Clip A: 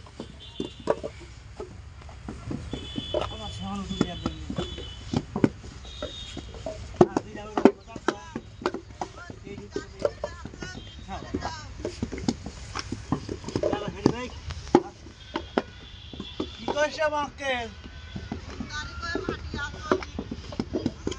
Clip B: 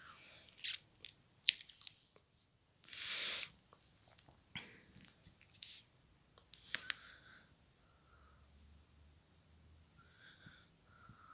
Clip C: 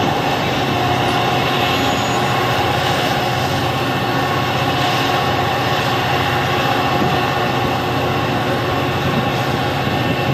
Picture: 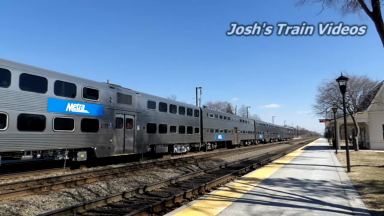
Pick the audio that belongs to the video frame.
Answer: C